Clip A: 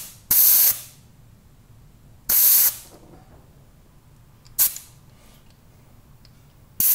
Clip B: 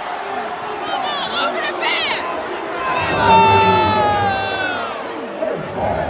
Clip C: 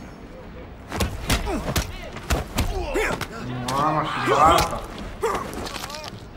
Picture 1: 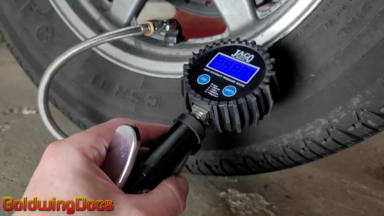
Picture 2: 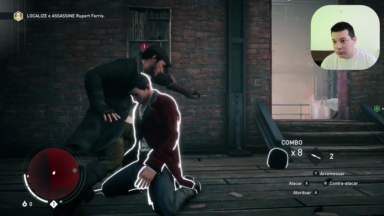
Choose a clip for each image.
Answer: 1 A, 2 C